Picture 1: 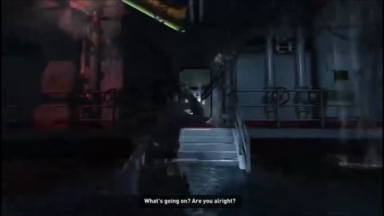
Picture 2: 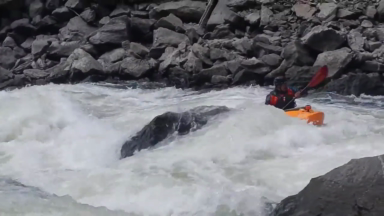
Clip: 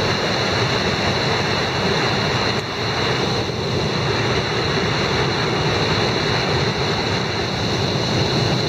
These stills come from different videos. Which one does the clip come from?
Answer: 2